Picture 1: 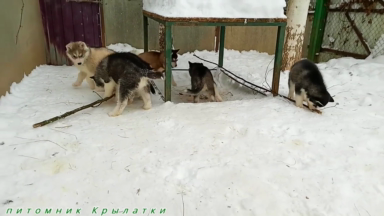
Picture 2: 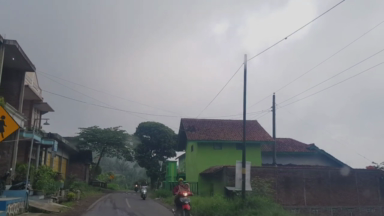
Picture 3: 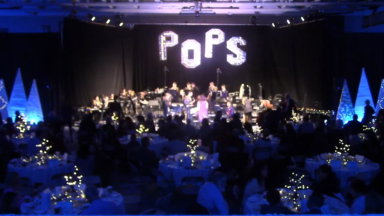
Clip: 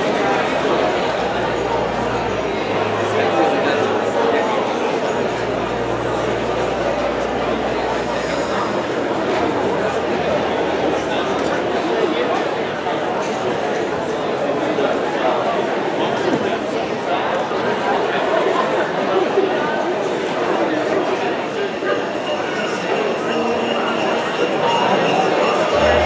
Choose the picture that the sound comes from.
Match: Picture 3